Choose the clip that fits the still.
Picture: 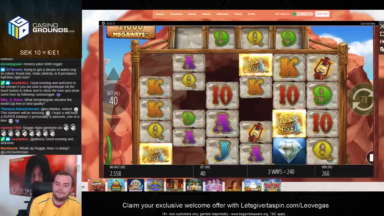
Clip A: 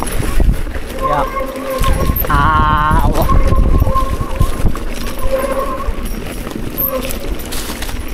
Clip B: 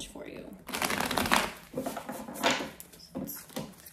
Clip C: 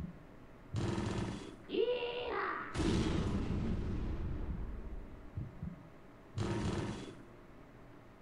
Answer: C